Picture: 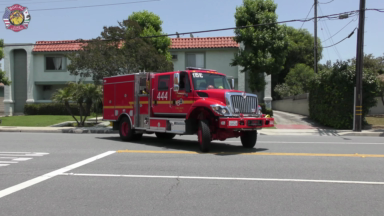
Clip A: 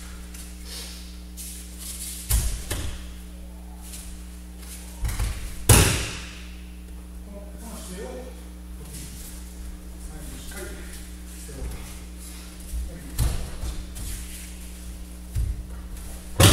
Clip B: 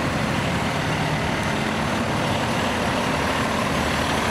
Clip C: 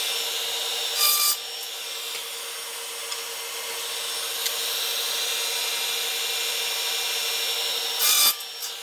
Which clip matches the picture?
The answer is B